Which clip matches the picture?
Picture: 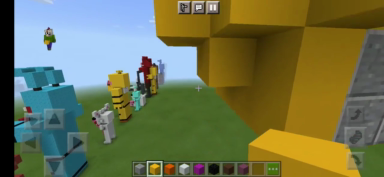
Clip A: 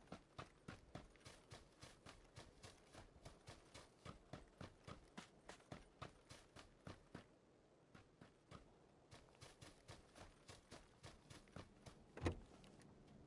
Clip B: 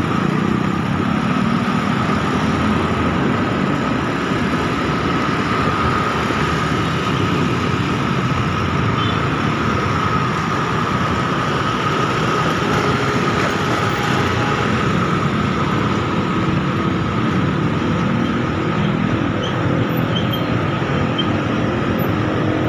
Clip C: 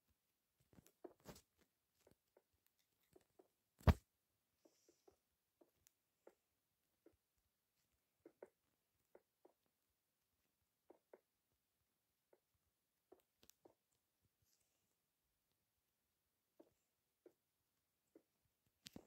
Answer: C